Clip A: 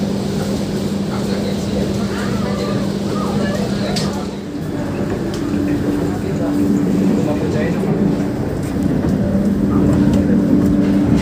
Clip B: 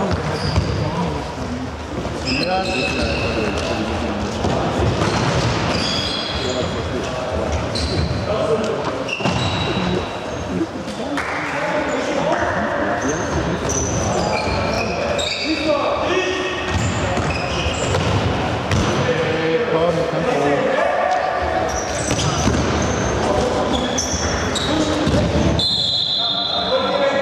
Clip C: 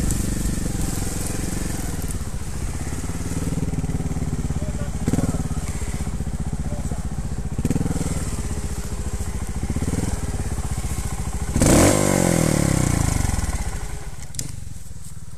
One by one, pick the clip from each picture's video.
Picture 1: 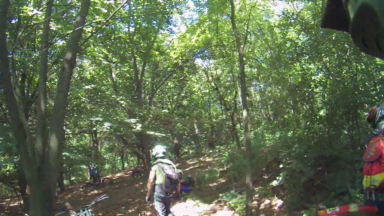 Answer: C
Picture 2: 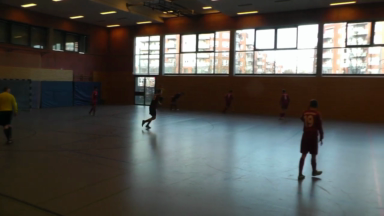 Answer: B